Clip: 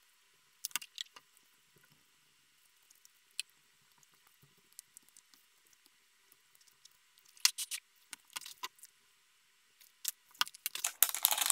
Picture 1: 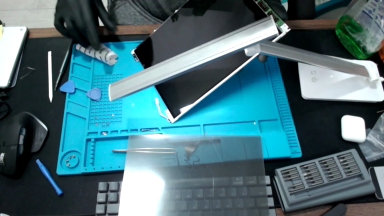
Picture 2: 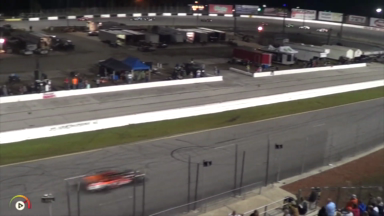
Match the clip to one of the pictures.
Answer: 1